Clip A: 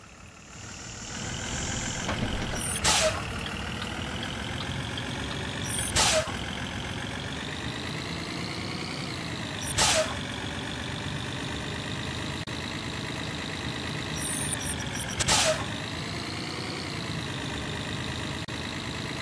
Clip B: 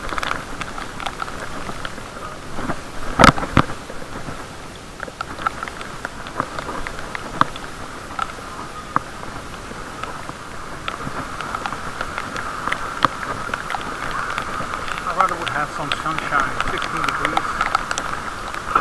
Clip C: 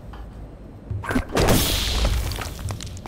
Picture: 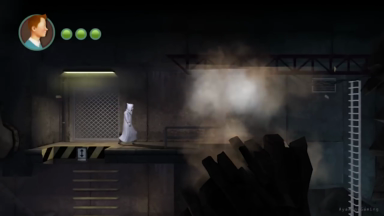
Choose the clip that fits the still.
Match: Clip C